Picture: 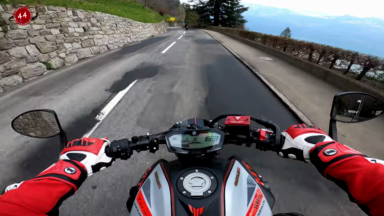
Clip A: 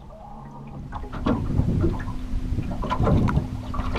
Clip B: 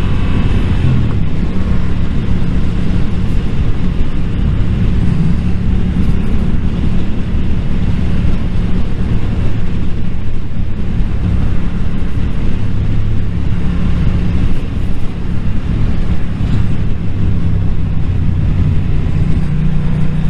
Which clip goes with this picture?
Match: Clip B